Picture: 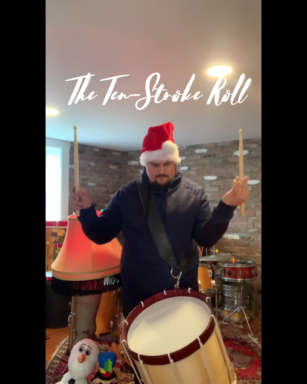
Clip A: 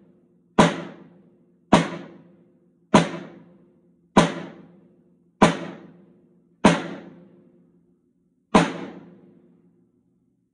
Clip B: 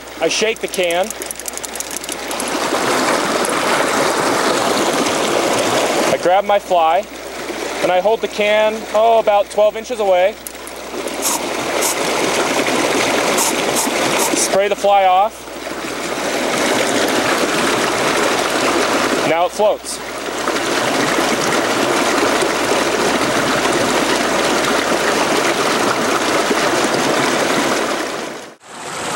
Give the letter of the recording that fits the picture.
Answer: A